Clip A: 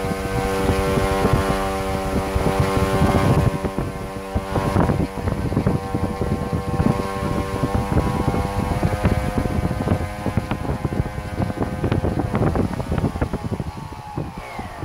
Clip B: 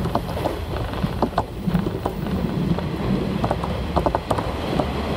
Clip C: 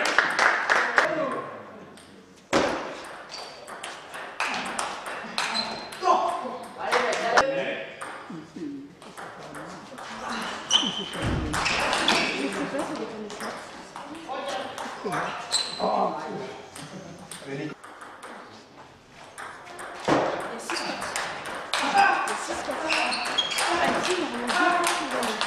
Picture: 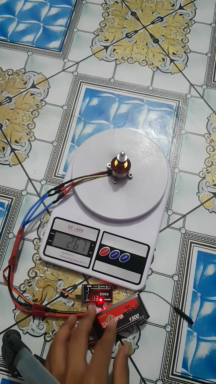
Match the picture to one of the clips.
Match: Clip A